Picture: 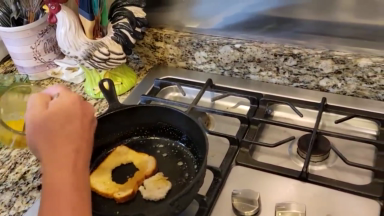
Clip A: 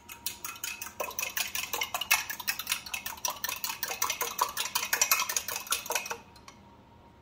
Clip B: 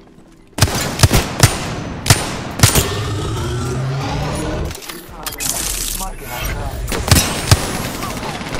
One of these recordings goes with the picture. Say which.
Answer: A